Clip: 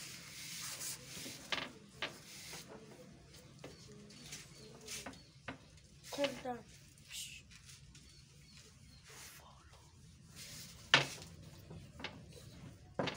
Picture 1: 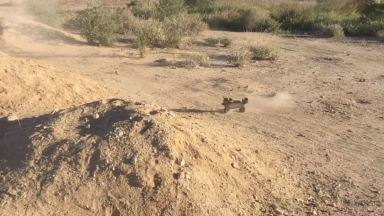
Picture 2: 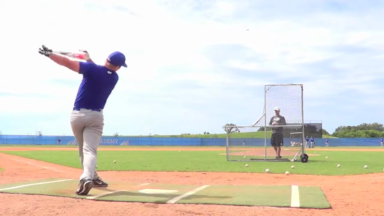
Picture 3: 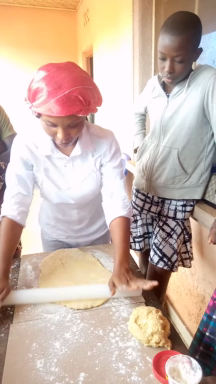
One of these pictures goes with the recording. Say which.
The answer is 3